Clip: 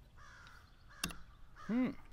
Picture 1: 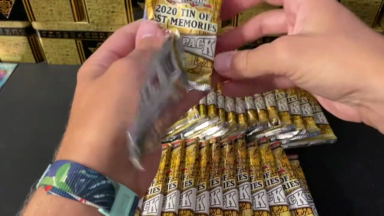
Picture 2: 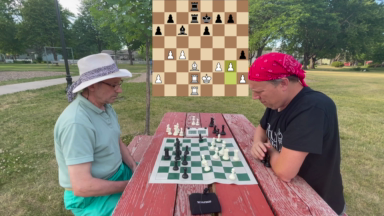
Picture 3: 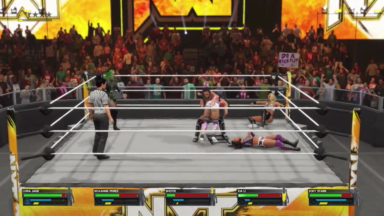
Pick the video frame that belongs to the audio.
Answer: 2